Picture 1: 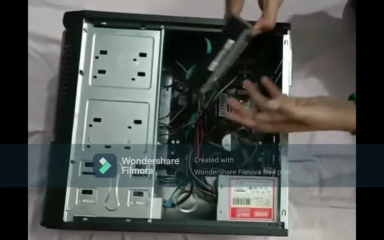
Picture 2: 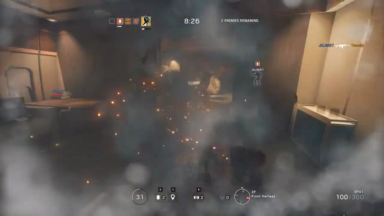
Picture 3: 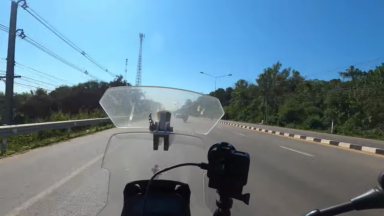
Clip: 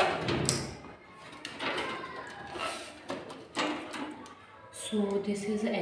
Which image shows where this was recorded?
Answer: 1